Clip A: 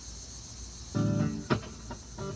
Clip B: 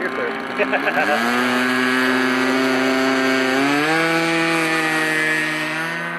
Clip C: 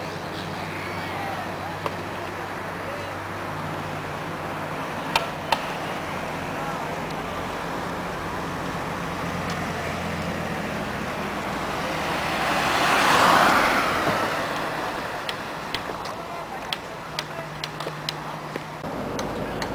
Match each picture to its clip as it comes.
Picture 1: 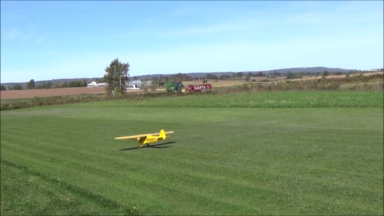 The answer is B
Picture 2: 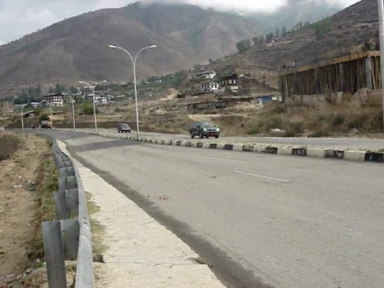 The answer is C